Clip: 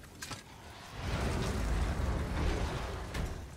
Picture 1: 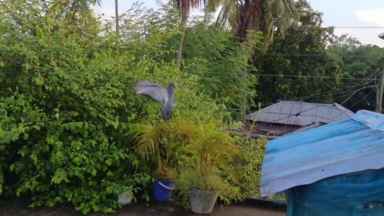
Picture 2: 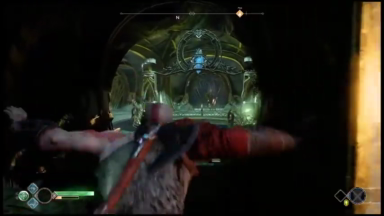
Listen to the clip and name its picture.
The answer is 2